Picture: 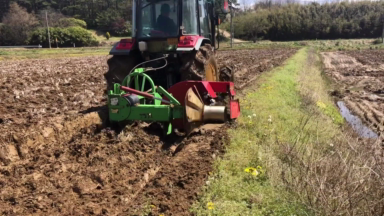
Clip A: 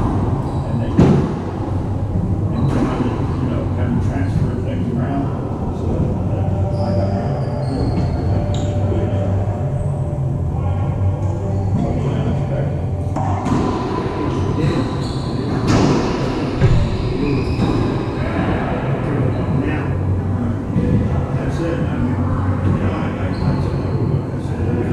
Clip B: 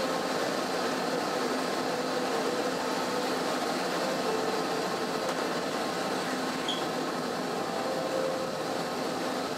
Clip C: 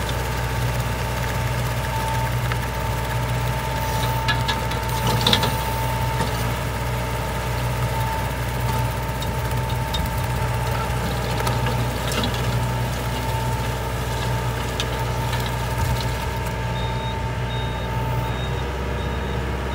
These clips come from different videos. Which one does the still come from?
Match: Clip C